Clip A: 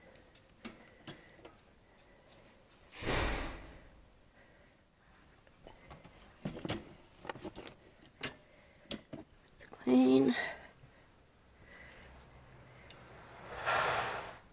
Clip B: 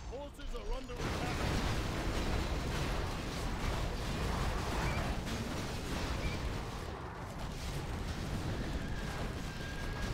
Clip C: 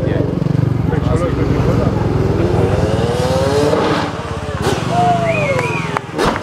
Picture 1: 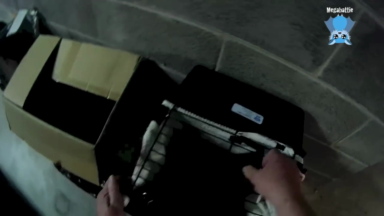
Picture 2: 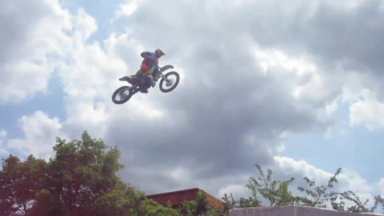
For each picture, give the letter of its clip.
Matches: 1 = A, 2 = C